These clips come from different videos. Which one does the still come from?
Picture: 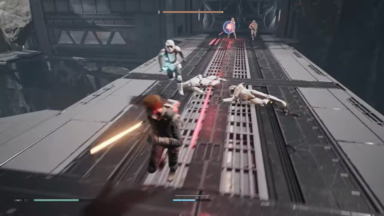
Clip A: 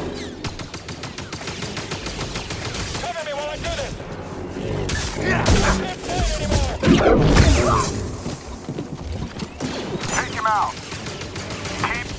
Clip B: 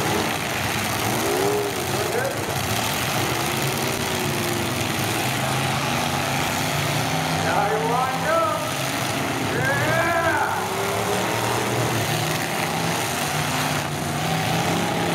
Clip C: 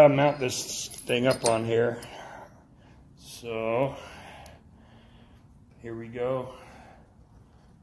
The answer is A